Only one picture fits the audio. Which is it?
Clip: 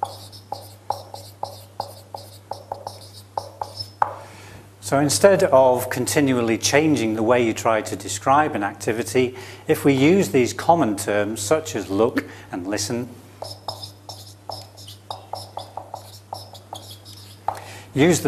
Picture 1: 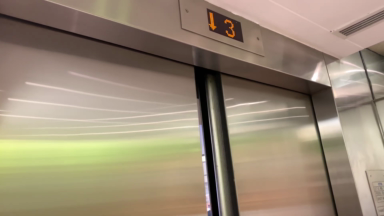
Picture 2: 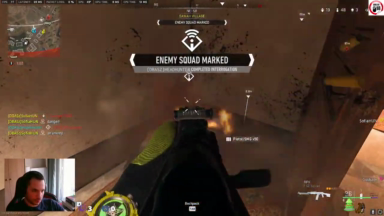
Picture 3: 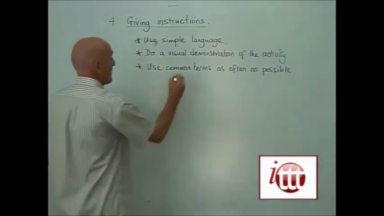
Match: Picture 3